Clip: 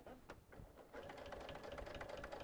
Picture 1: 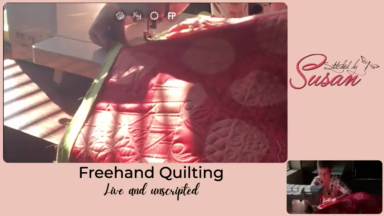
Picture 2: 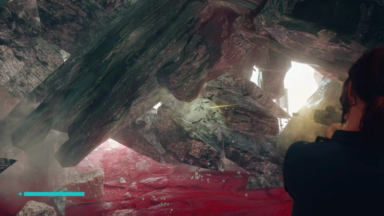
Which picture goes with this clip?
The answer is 1